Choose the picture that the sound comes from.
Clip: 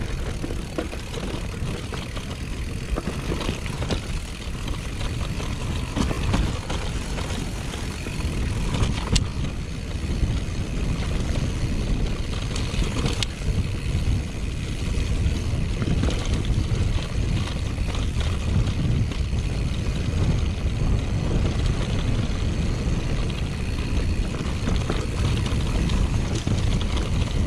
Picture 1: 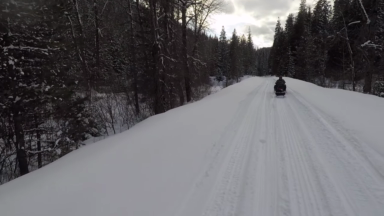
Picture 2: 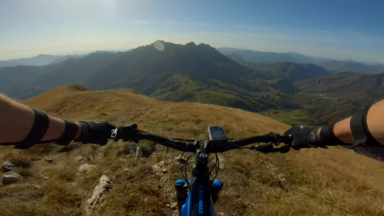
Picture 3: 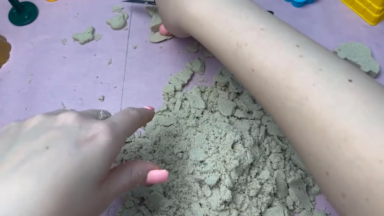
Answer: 2